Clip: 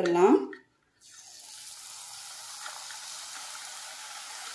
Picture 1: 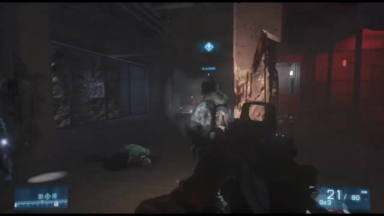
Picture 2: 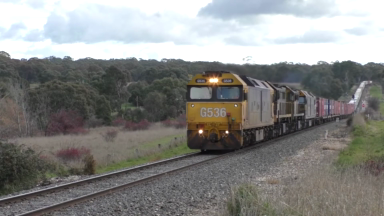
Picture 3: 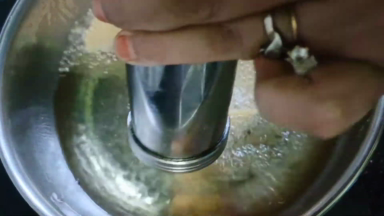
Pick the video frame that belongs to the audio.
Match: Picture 3